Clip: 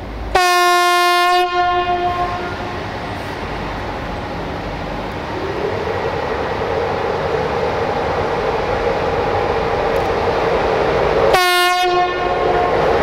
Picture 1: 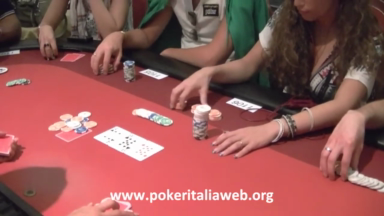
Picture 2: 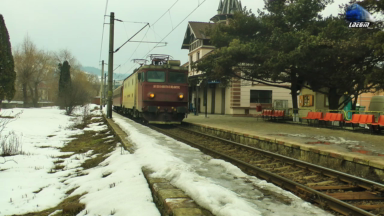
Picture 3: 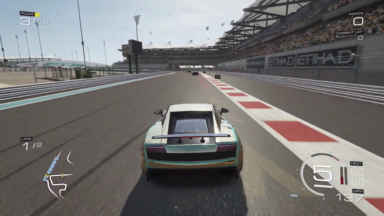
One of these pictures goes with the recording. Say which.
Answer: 2